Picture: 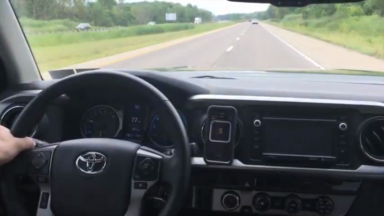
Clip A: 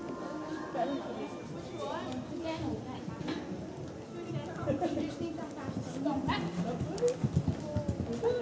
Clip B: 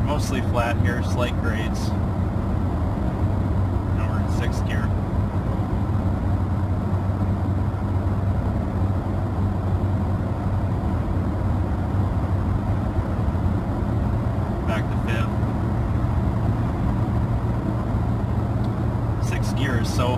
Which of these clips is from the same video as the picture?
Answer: B